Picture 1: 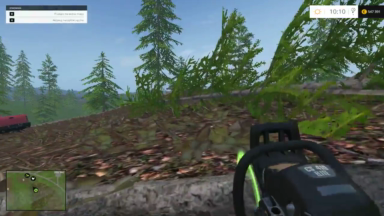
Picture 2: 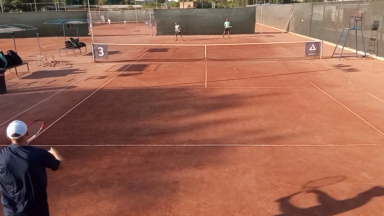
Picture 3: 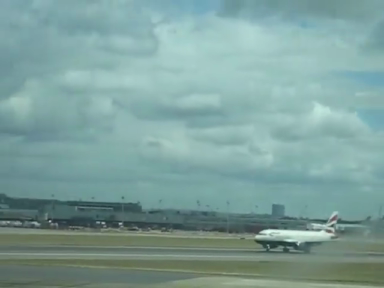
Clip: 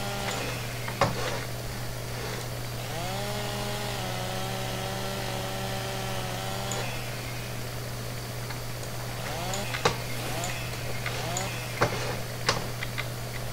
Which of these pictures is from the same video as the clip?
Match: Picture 1